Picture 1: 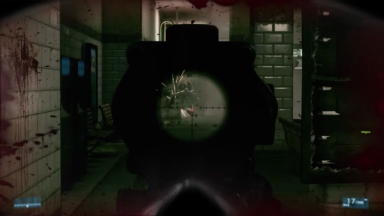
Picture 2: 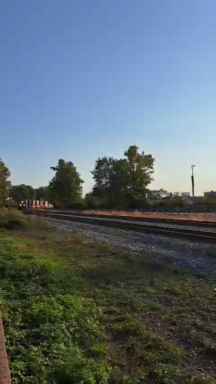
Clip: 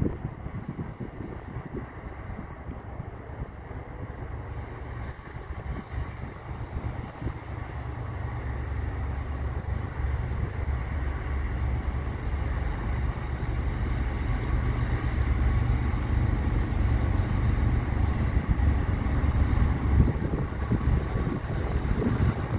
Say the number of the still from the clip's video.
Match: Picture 2